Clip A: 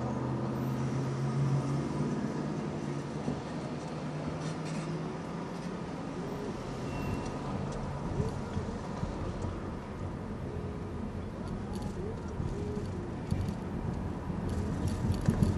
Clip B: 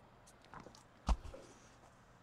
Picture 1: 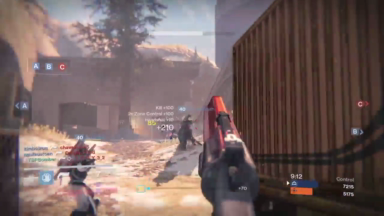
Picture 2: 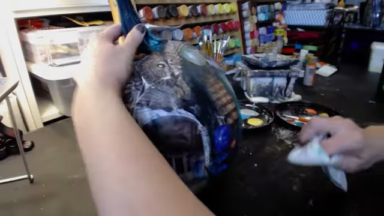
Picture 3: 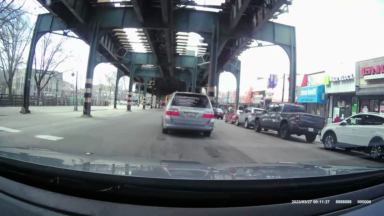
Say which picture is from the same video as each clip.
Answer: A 3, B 2